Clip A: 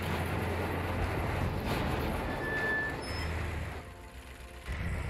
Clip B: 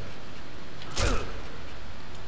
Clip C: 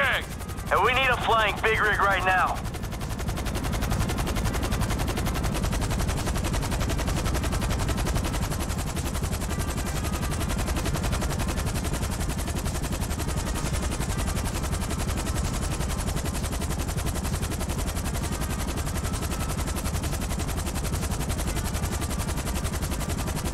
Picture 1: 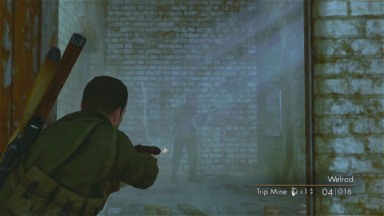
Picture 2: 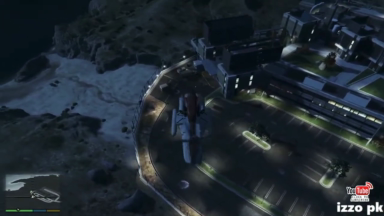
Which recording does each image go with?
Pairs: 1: B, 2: C